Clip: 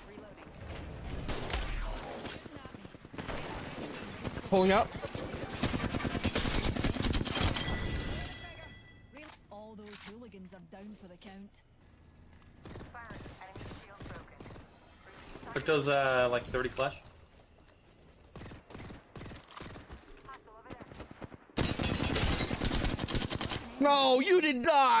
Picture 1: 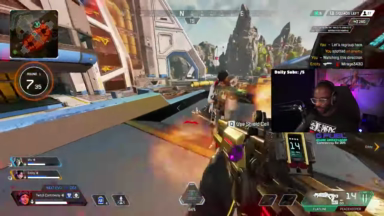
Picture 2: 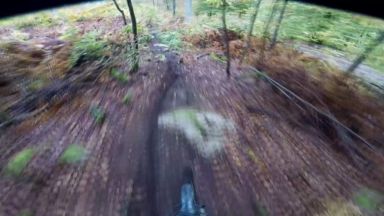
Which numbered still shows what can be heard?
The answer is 1